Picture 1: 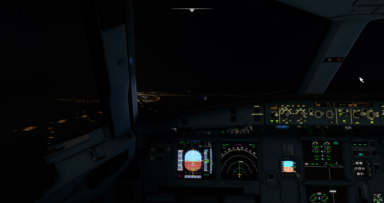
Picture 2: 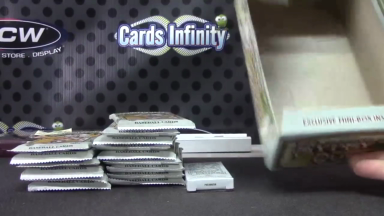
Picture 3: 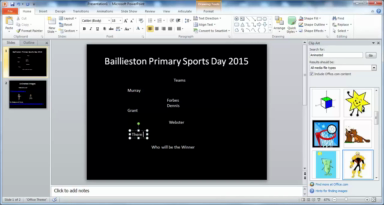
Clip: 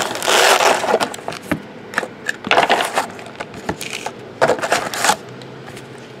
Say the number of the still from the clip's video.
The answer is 2